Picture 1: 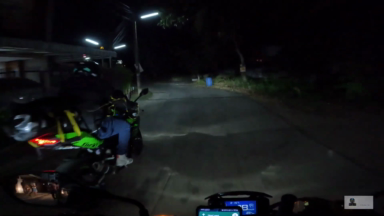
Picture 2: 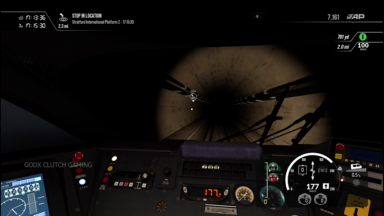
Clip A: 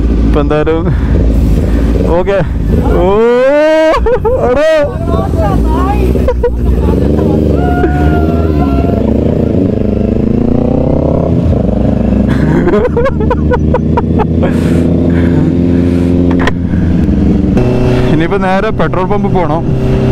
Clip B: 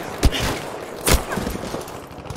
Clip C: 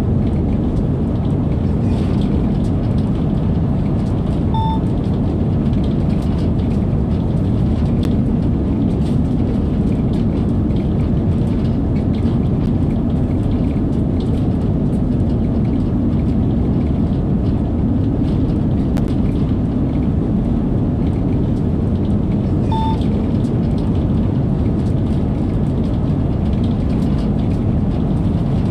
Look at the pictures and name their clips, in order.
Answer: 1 A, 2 C